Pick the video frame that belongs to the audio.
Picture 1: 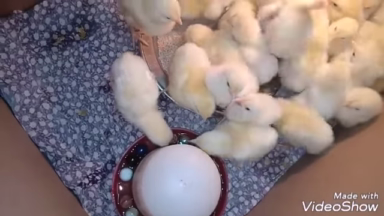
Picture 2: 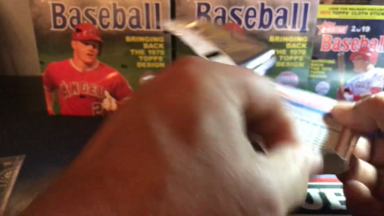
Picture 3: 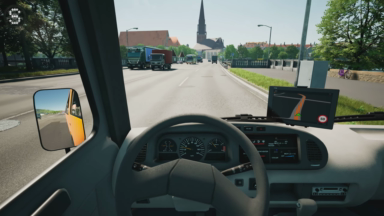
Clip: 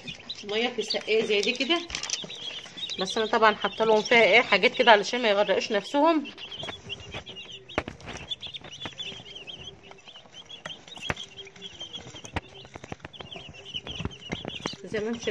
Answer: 1